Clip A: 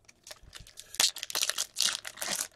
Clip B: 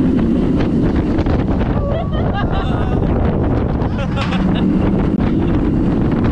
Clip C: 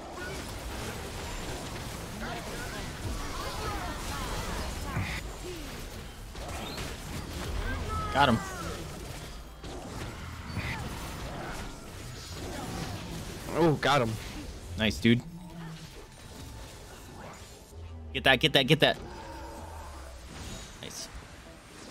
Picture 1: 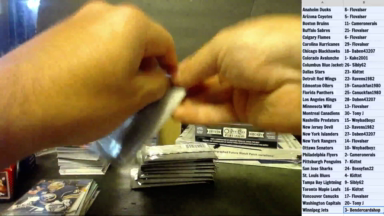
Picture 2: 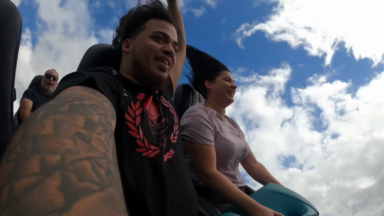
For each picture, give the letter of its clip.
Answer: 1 A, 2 B